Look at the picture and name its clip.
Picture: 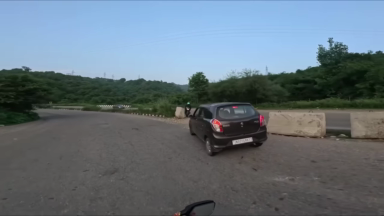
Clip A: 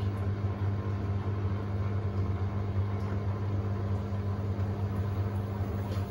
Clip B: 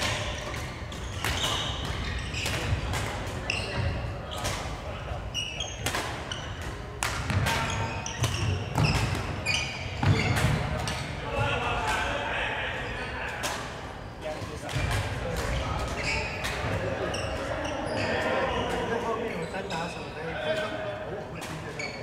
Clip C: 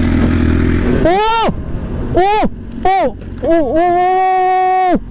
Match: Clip C